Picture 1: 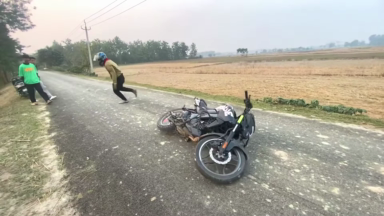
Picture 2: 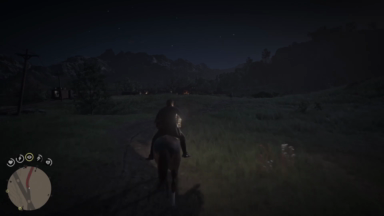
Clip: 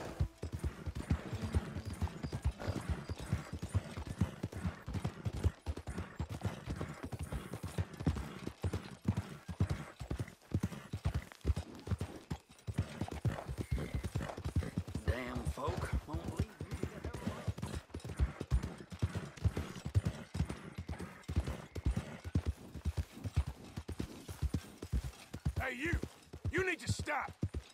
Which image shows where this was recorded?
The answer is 2